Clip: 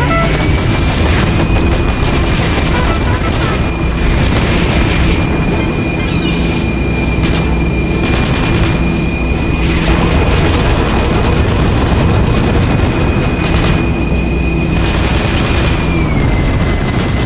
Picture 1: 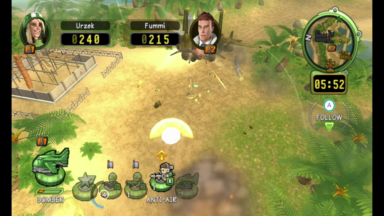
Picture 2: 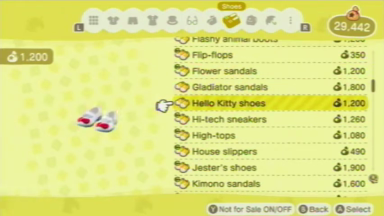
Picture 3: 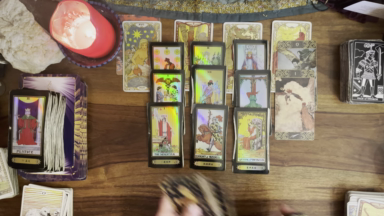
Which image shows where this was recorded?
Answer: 1